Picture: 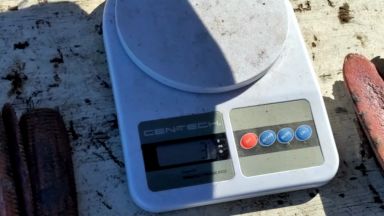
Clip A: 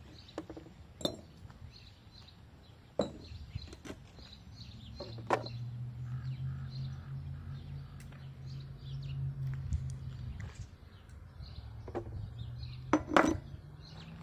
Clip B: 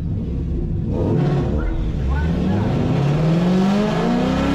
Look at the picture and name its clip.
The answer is A